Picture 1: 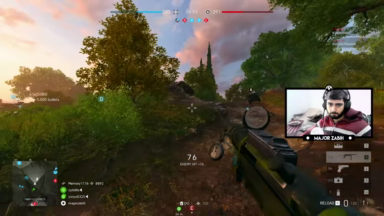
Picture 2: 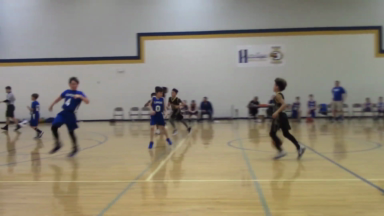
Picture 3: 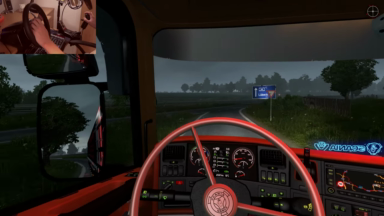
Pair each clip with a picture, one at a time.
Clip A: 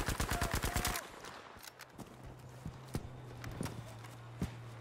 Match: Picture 1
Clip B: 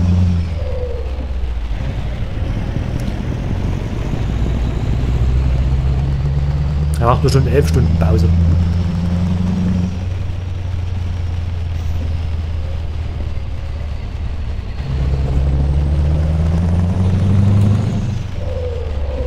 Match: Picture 3